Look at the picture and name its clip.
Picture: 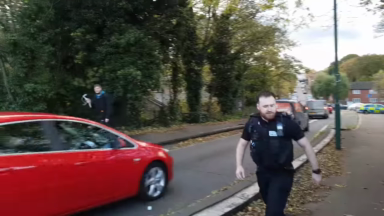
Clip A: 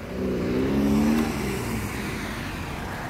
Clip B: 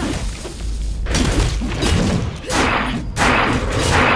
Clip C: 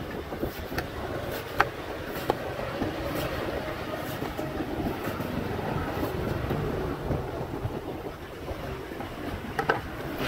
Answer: A